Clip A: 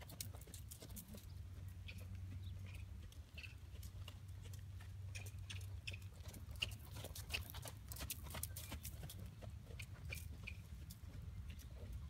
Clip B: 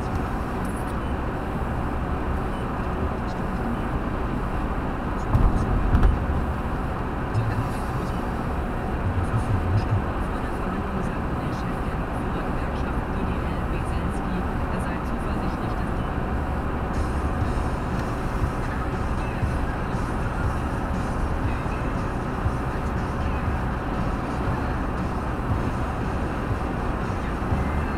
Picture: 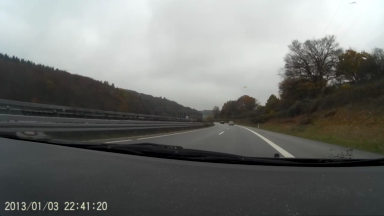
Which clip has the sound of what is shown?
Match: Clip B